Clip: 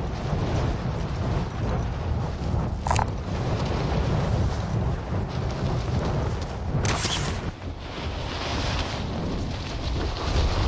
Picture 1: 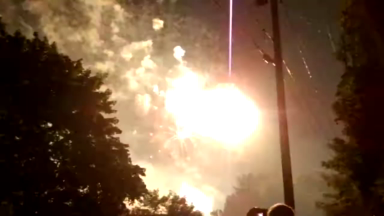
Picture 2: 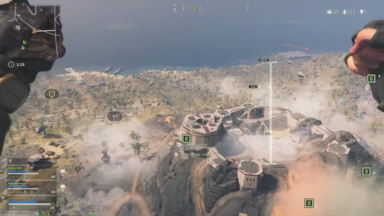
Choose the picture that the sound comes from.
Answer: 2